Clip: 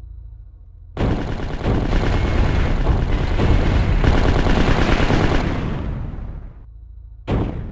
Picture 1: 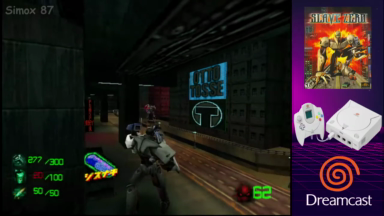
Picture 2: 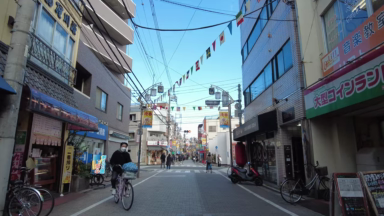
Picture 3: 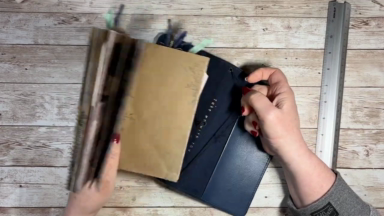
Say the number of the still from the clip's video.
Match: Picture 1